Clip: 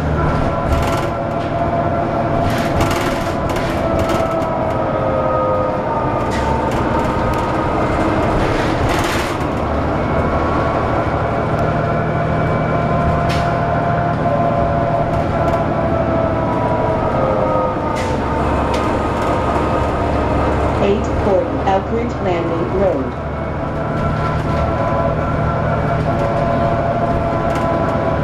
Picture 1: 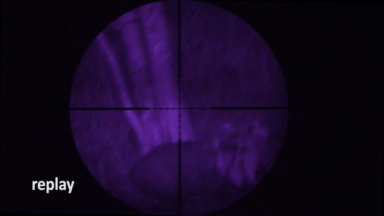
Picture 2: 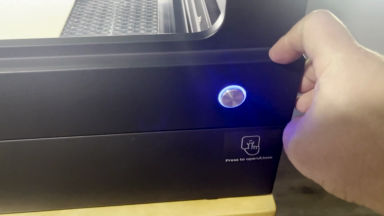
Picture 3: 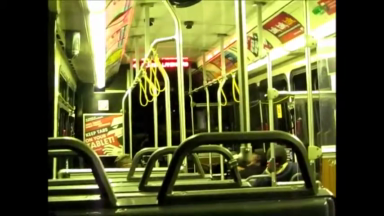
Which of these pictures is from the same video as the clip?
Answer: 3